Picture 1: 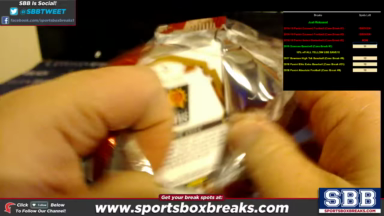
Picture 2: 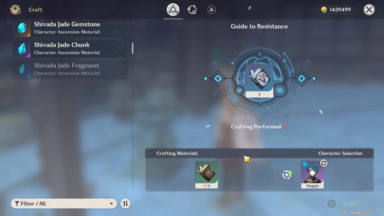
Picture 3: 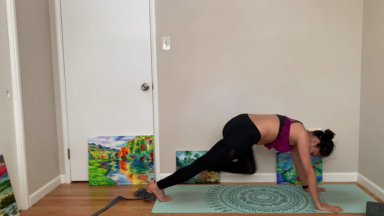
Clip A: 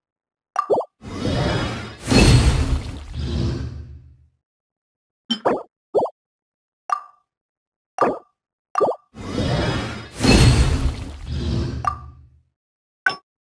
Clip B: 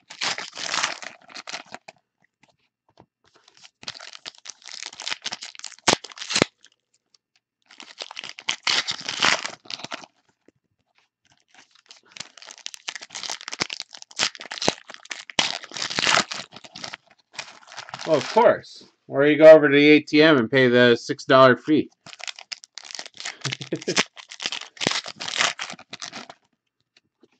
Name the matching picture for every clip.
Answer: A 2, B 1